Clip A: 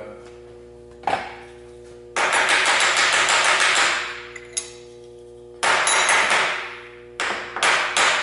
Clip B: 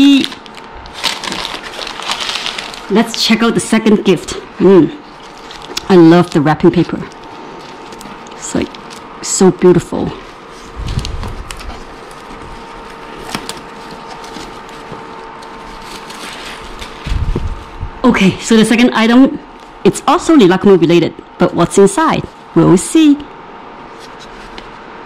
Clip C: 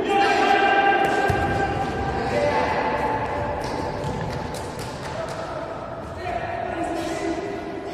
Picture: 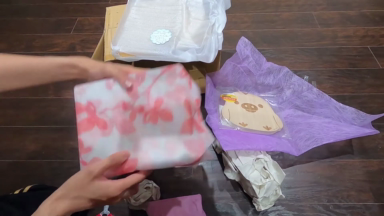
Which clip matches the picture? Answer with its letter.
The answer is B